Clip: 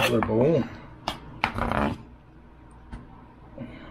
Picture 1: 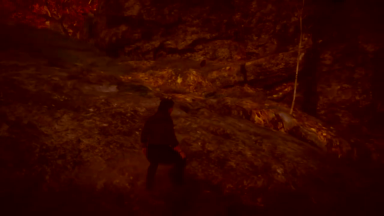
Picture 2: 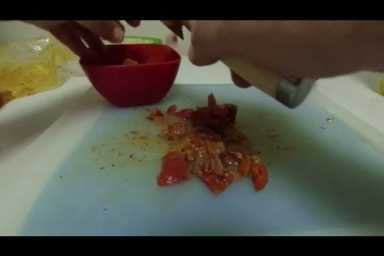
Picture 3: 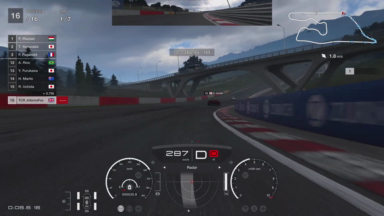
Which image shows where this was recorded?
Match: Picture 2